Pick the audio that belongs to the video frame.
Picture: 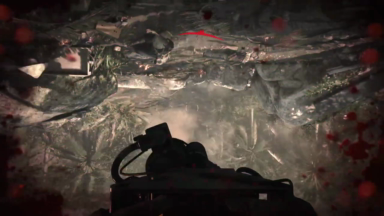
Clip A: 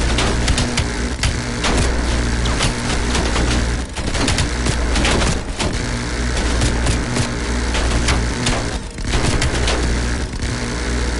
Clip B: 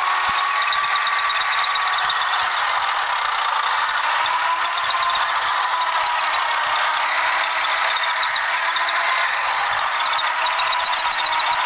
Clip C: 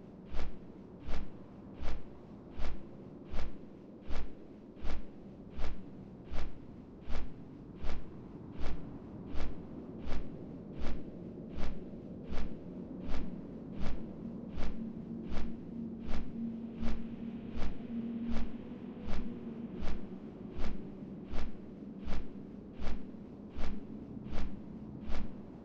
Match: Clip A